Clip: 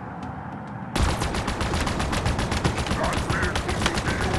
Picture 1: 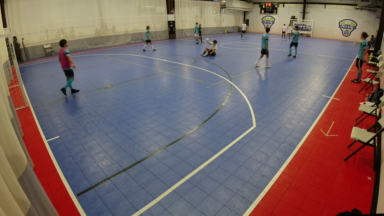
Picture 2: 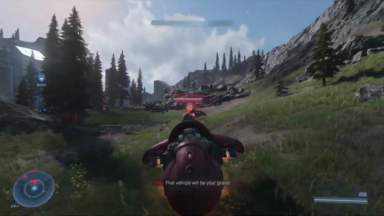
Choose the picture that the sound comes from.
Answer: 2